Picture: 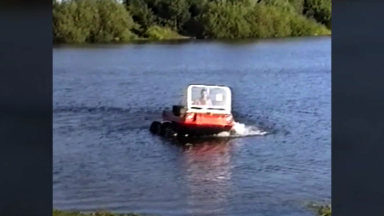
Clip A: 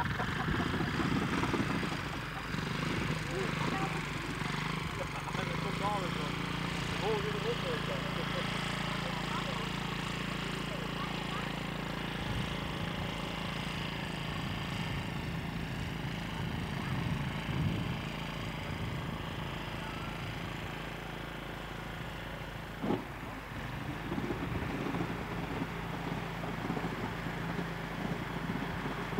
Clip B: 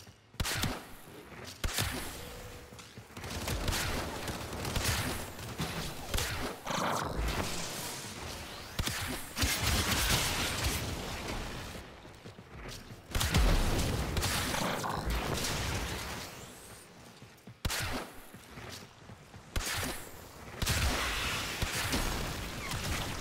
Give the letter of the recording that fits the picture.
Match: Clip A